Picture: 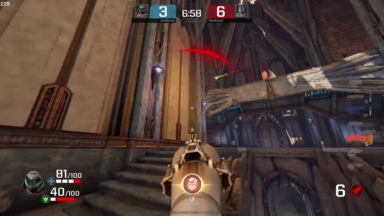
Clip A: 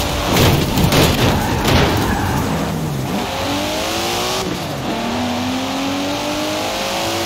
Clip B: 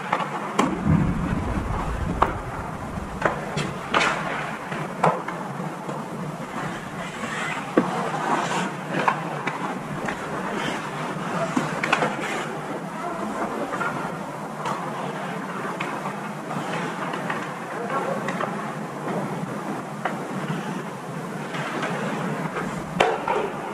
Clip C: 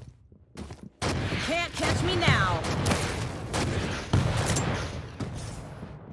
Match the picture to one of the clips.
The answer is C